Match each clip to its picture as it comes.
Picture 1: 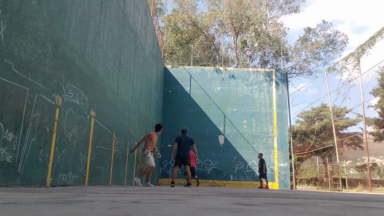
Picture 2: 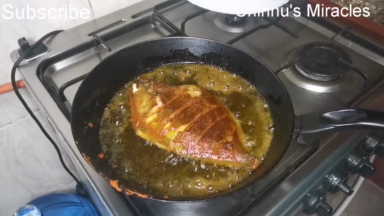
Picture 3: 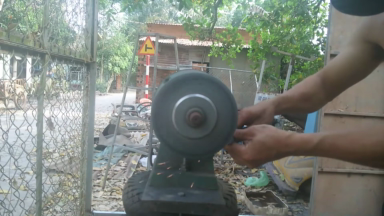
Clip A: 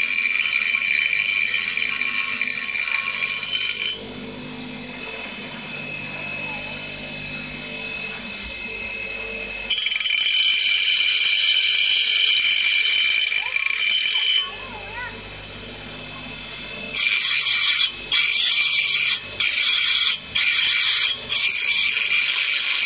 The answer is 3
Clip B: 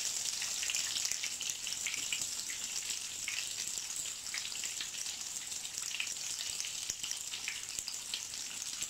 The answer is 2